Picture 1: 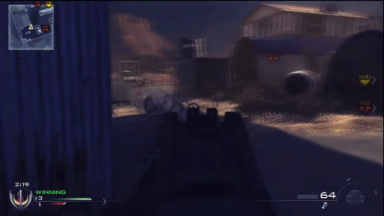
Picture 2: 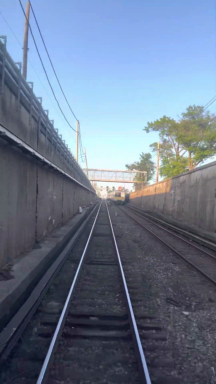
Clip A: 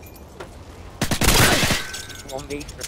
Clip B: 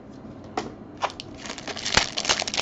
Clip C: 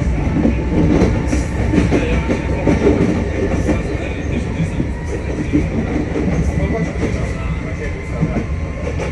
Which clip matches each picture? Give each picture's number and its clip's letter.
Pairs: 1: A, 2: C